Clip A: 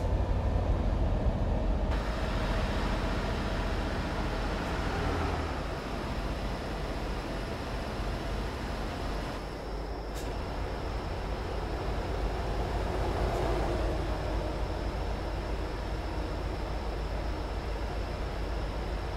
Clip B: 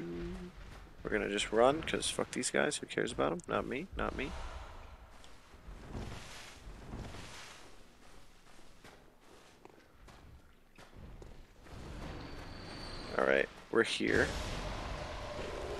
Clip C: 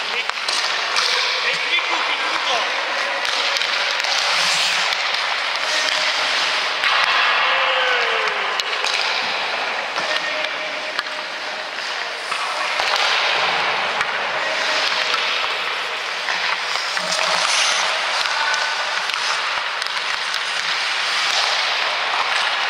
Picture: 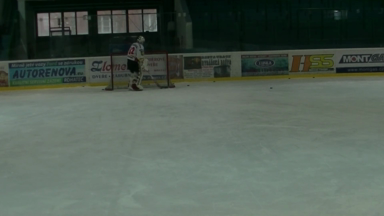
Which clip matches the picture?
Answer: C